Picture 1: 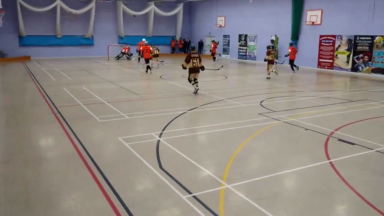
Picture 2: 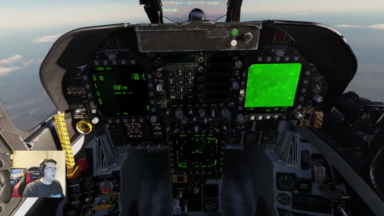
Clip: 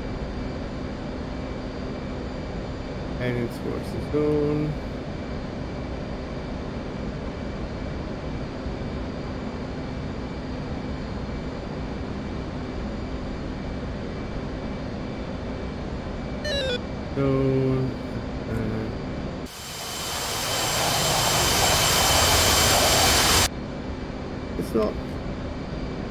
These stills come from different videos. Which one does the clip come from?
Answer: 2